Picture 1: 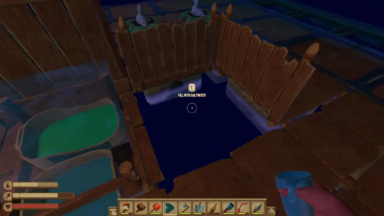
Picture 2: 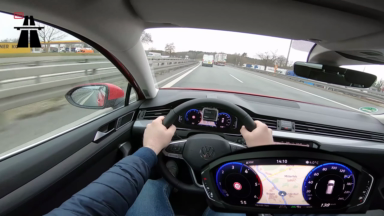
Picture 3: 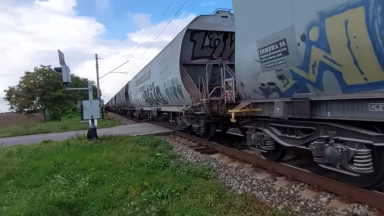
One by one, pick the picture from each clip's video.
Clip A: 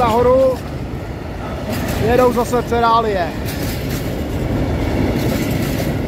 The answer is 3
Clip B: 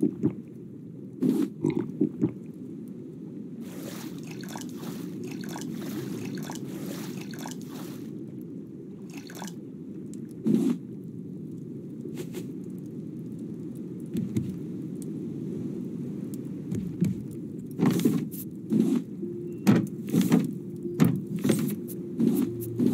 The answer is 1